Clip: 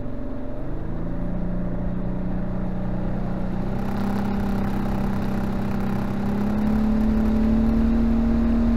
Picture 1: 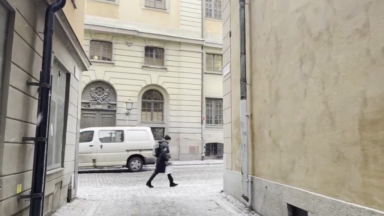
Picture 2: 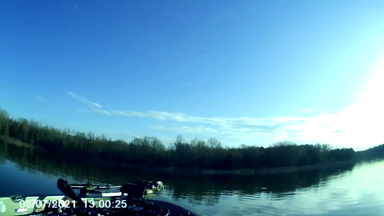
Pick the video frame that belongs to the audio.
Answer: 2